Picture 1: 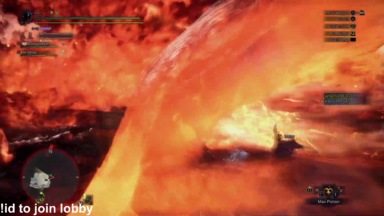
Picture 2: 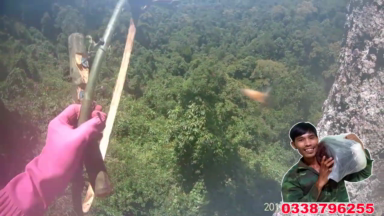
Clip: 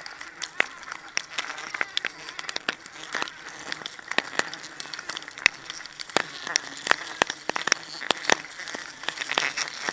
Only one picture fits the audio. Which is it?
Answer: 2